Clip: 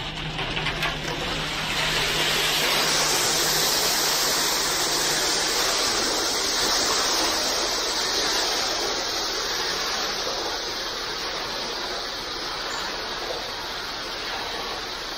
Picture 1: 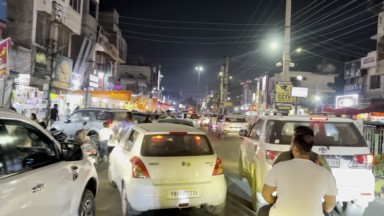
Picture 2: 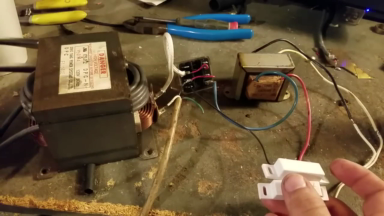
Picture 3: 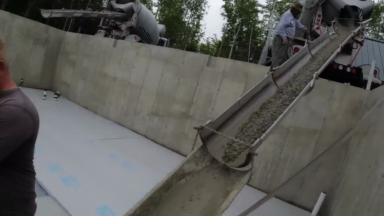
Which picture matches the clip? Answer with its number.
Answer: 3